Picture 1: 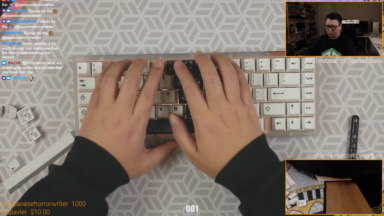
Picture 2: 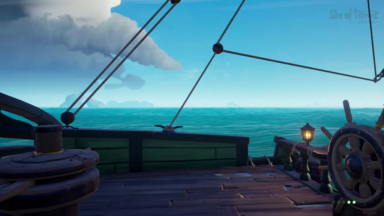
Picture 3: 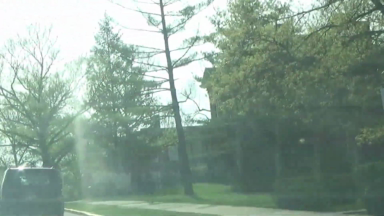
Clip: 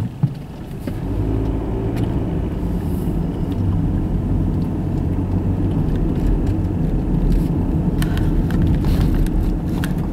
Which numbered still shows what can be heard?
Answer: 3